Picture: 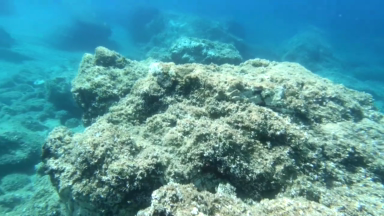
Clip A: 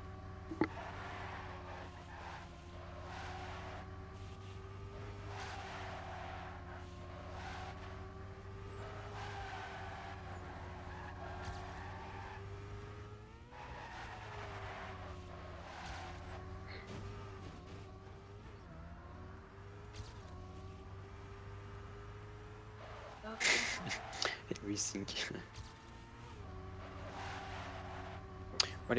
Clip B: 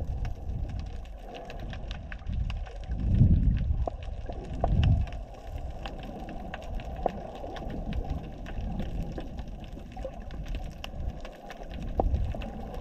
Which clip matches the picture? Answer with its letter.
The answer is B